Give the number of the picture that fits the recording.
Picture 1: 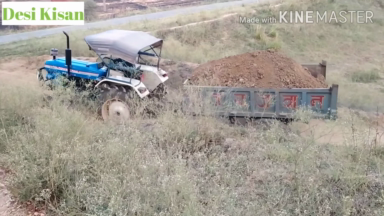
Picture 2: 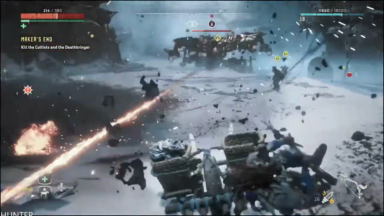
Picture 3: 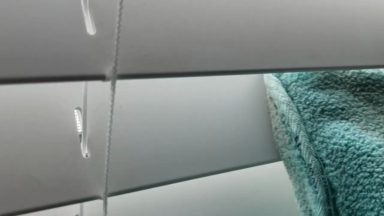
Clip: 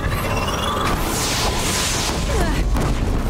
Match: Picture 2